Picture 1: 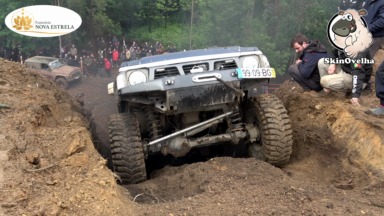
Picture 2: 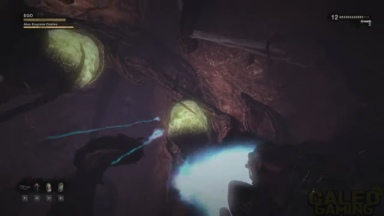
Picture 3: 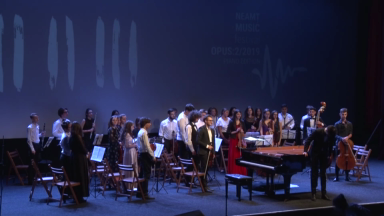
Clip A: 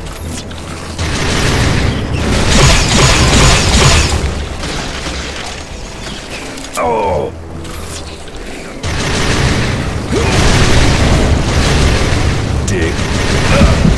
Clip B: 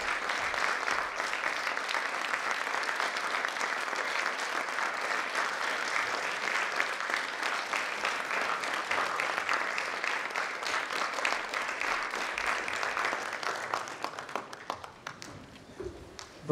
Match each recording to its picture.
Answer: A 2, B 3